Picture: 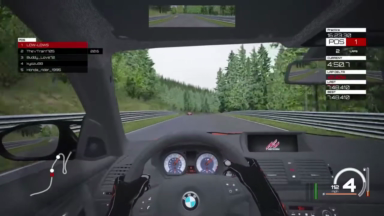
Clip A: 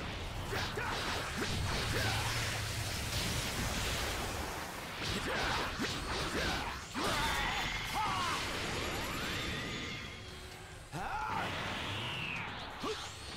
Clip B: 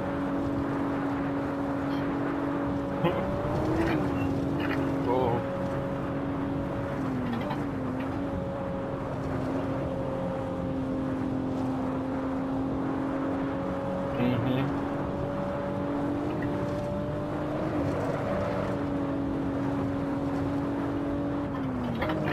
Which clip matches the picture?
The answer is B